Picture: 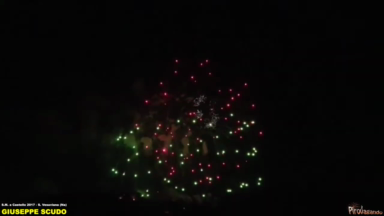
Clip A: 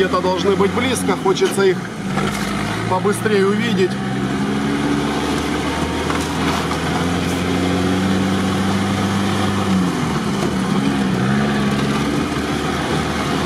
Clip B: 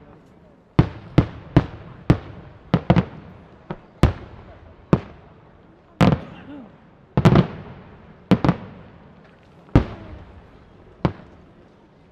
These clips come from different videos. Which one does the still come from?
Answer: B